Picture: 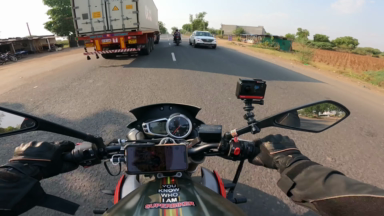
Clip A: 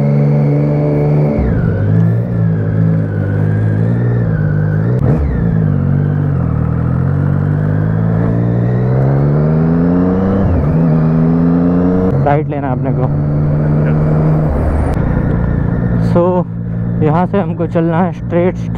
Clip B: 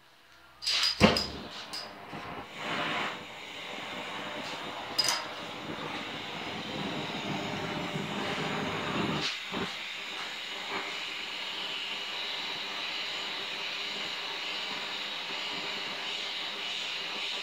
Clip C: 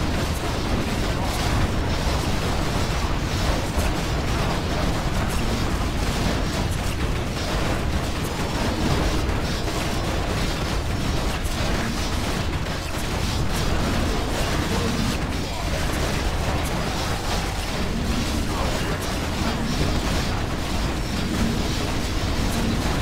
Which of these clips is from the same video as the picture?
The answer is A